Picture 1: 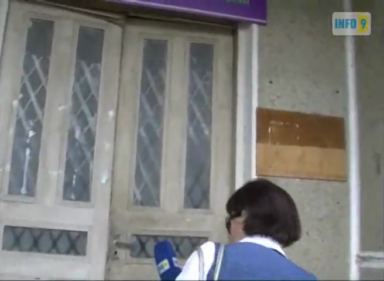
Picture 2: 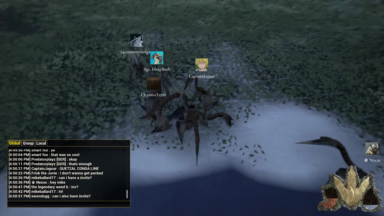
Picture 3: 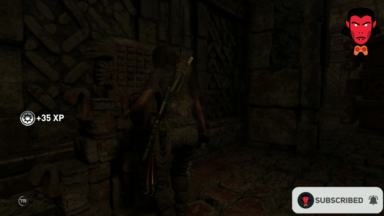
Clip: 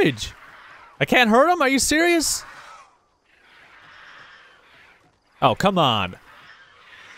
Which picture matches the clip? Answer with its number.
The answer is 2